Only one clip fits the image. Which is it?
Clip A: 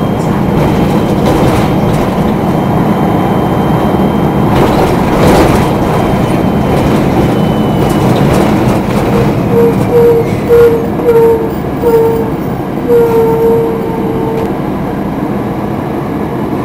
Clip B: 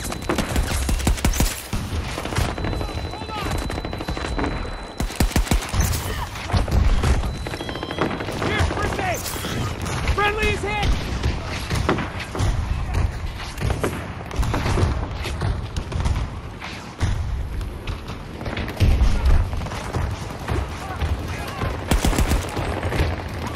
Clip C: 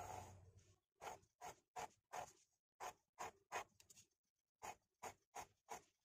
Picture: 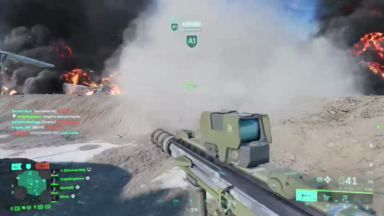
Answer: B